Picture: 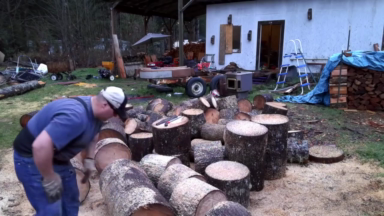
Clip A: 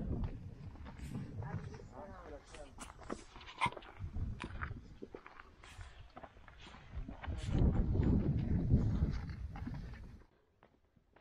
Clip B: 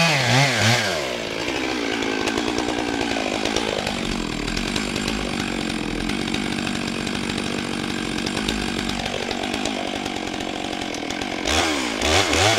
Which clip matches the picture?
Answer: B